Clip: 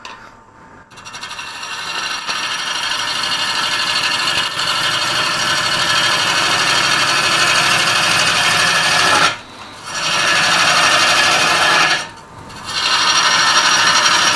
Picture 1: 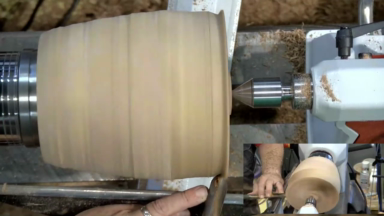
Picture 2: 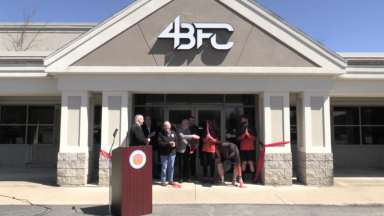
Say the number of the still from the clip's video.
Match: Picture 1